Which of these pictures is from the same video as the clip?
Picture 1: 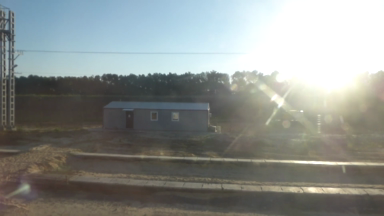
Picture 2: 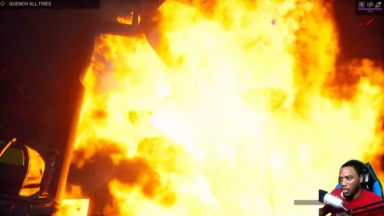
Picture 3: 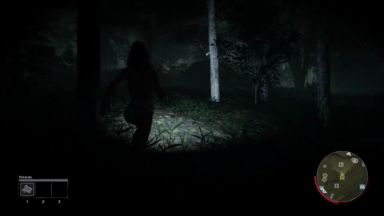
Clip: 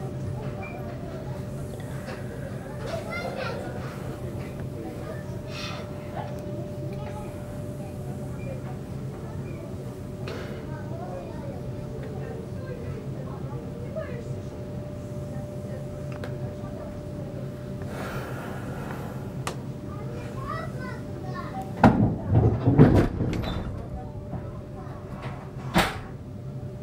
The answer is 1